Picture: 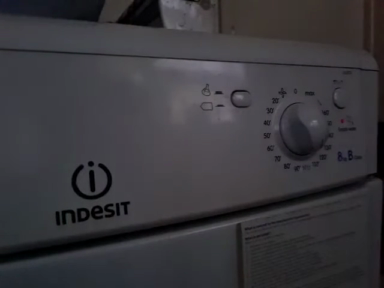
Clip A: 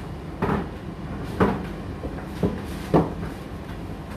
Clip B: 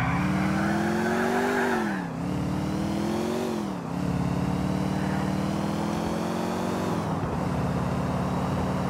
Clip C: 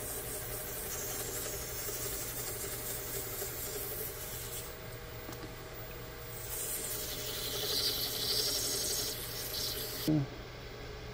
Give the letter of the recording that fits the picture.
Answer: A